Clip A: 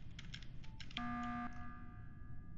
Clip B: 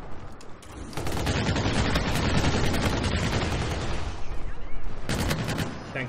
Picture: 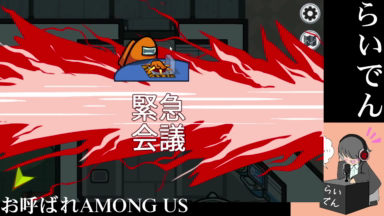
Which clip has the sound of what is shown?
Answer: A